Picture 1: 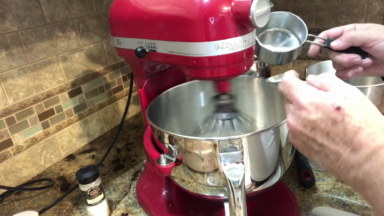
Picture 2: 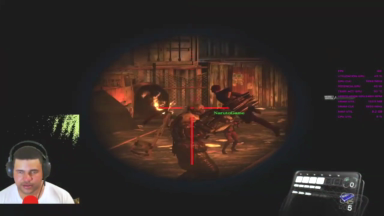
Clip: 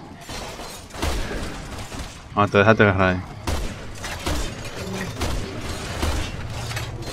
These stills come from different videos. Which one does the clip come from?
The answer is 2